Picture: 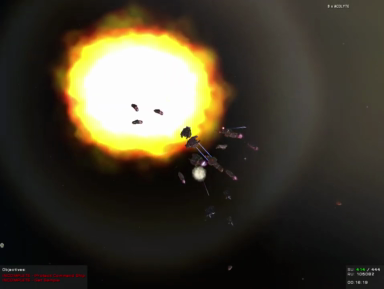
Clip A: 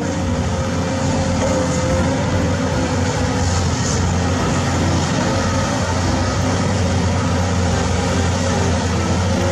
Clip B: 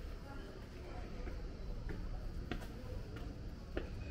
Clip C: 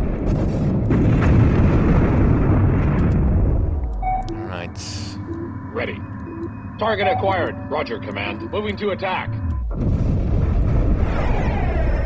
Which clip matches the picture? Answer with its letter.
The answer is C